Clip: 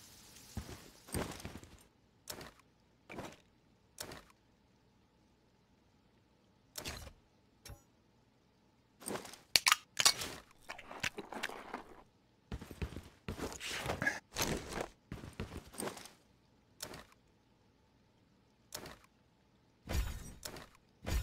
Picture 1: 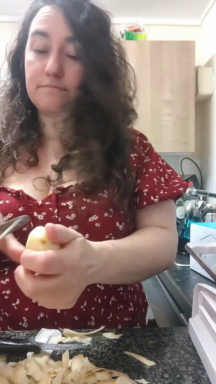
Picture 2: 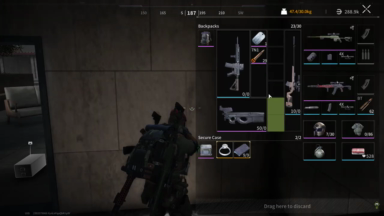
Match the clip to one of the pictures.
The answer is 2